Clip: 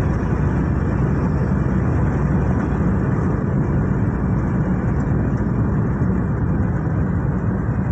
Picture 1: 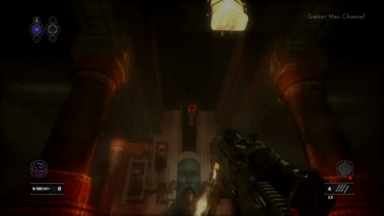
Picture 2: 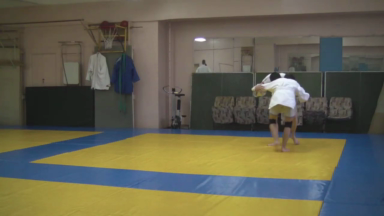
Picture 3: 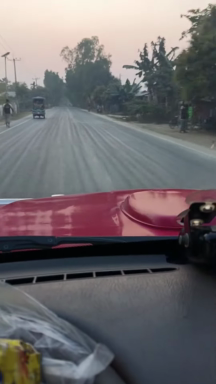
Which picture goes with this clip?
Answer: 3